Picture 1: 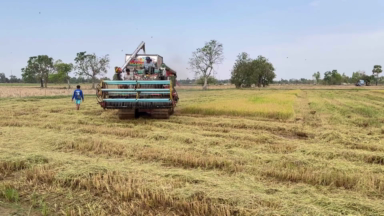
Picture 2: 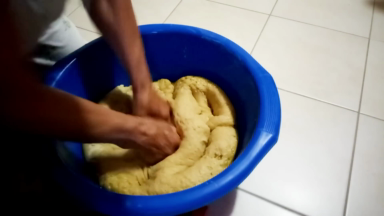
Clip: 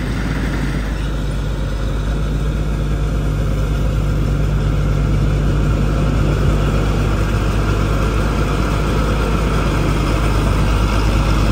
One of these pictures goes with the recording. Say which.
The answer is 1